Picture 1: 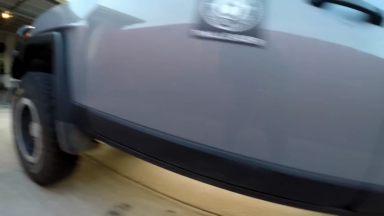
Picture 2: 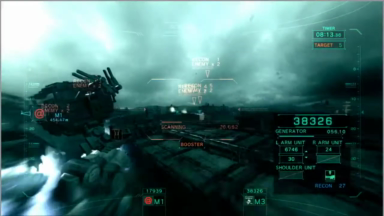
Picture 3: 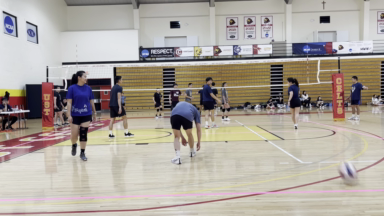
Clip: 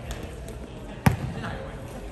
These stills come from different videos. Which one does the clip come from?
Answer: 3